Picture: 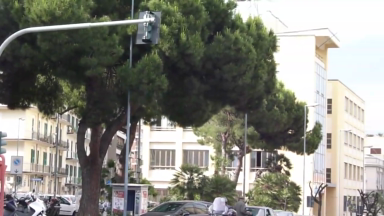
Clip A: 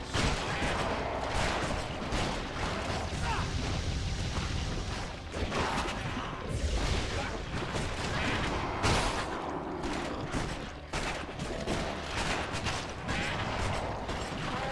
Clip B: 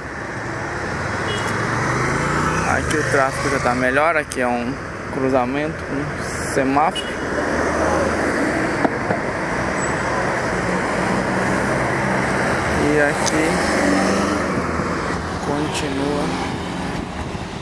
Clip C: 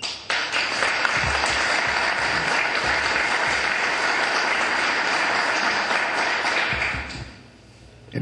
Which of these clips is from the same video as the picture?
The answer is B